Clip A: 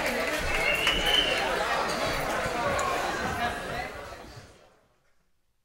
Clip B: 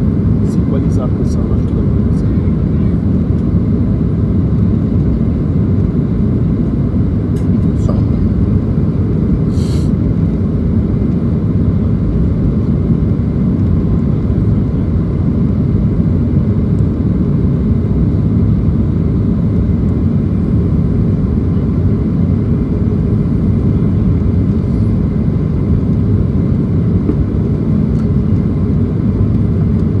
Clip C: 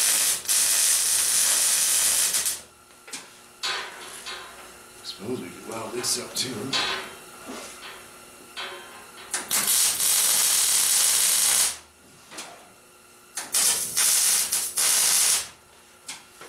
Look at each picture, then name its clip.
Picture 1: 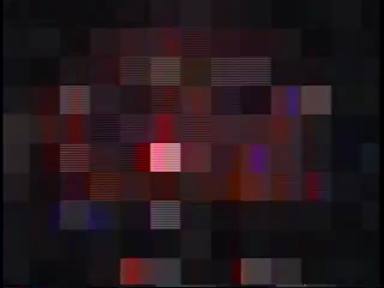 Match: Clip A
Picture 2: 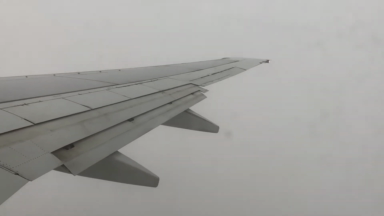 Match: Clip B